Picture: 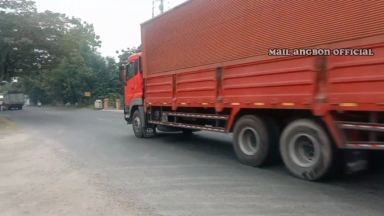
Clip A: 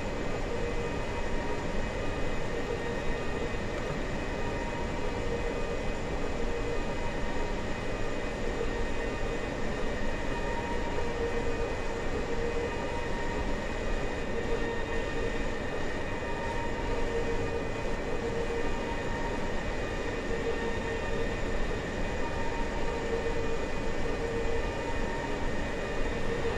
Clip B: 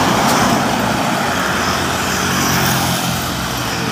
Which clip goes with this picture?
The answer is B